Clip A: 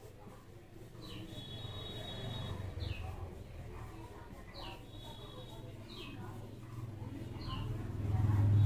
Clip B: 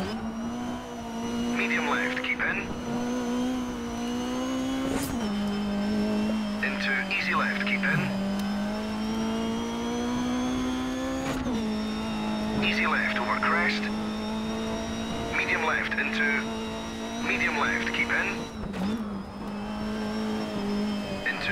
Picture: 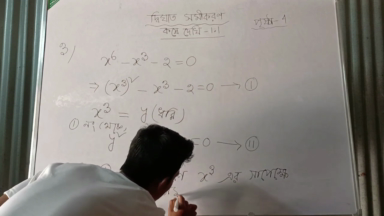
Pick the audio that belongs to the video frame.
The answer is A